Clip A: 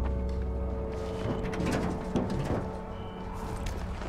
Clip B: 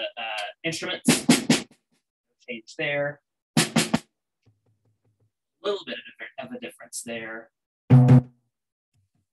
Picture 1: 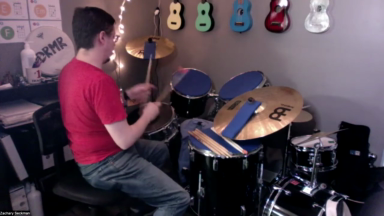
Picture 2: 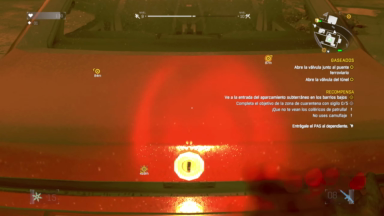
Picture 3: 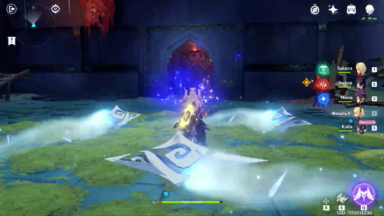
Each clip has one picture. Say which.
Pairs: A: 2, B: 1